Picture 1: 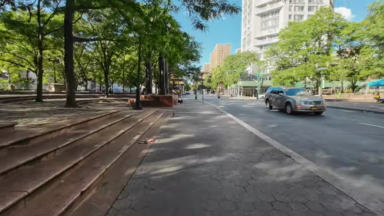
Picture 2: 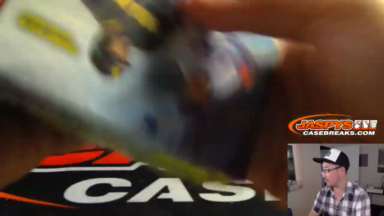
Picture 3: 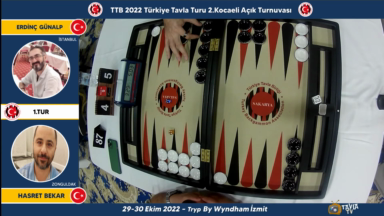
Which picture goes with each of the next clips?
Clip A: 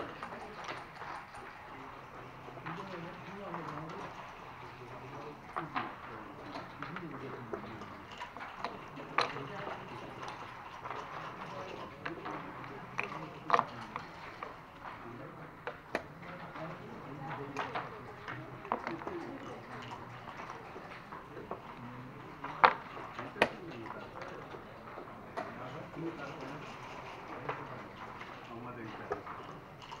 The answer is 3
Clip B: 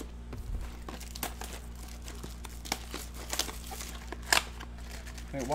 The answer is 2